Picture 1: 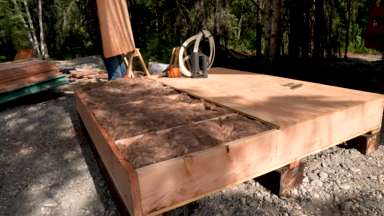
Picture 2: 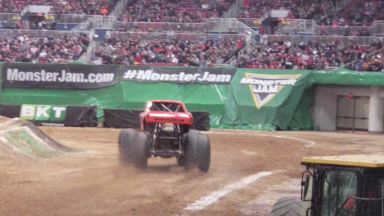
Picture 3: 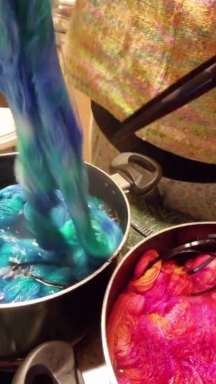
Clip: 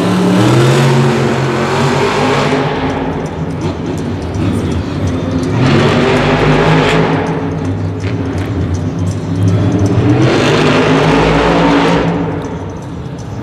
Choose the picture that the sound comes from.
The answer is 2